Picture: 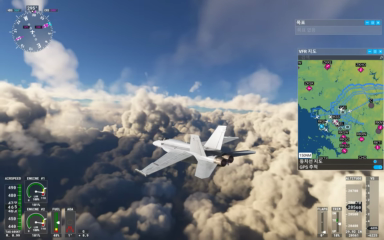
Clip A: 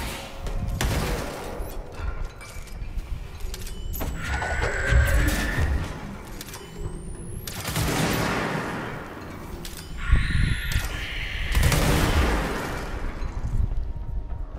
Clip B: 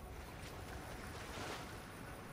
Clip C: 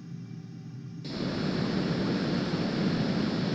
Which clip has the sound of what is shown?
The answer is C